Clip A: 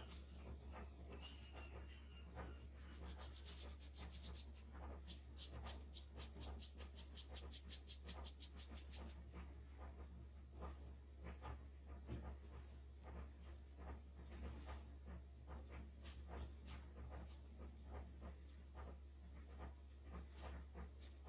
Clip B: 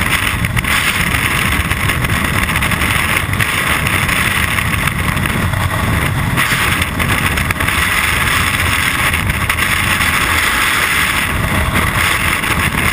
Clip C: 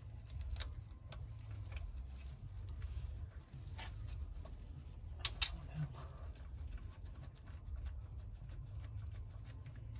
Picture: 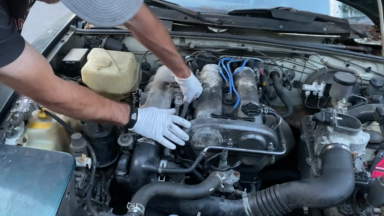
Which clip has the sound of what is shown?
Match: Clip C